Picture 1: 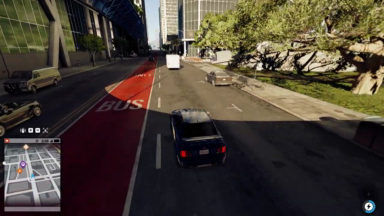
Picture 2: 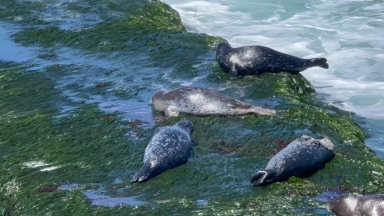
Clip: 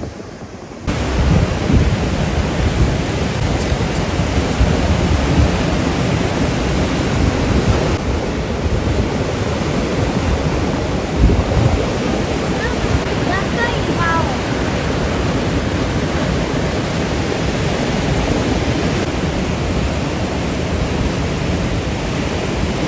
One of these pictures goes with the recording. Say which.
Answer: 2